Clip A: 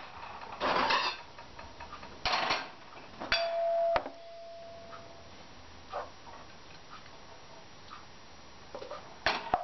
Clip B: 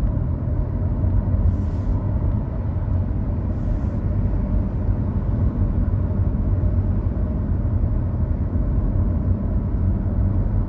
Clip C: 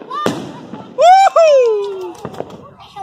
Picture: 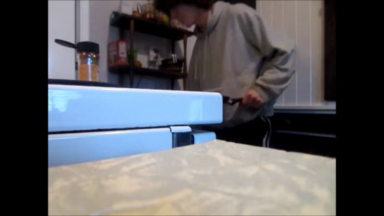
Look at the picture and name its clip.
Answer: A